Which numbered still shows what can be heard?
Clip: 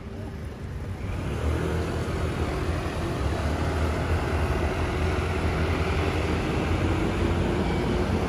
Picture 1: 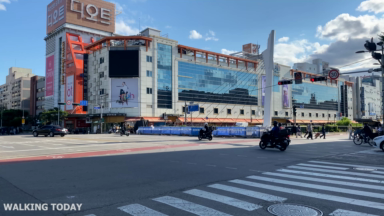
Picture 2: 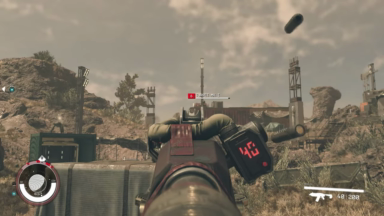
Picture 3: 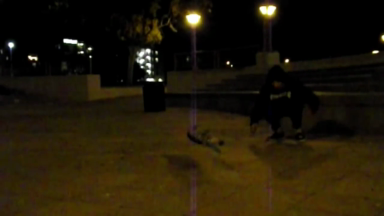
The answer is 1